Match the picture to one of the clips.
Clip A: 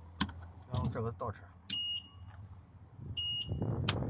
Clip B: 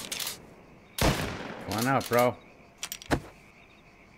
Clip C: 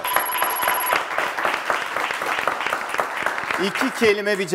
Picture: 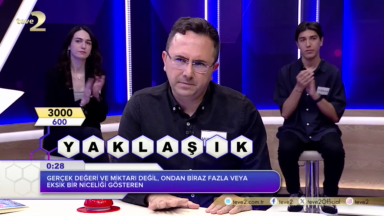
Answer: C